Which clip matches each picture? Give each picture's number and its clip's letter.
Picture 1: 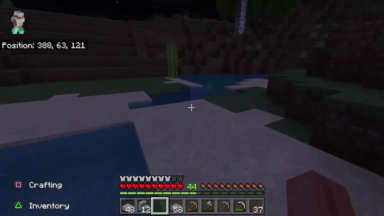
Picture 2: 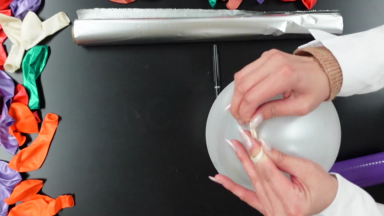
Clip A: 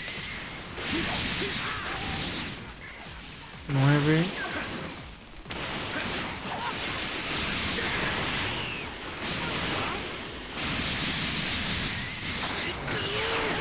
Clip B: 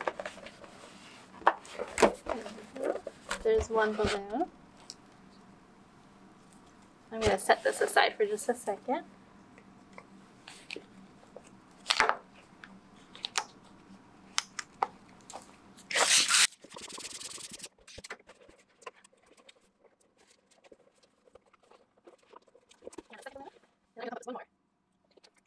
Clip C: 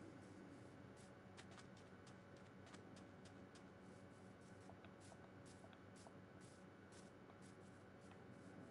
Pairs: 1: C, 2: B